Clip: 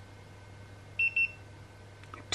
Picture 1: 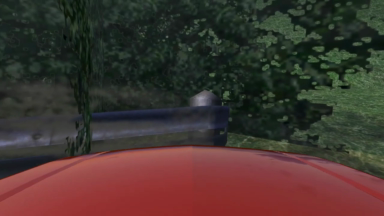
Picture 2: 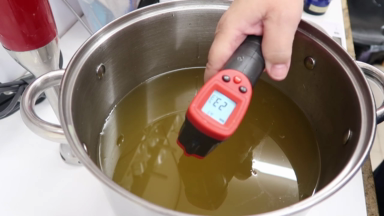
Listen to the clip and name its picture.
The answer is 2